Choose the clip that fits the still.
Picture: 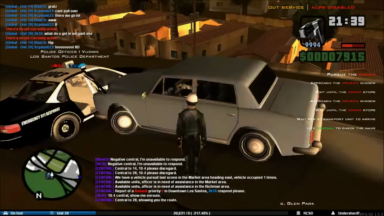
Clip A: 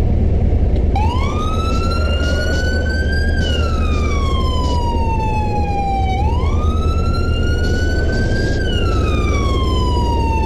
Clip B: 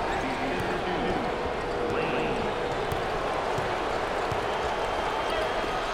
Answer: A